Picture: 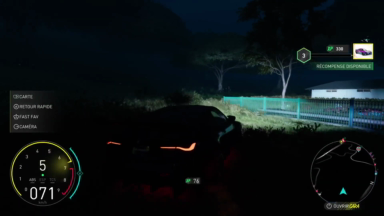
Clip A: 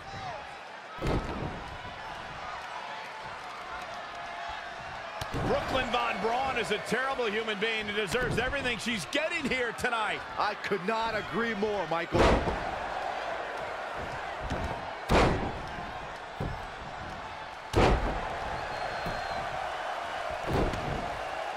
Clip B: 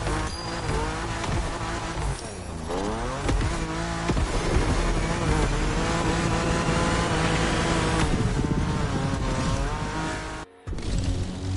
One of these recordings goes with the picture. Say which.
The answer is B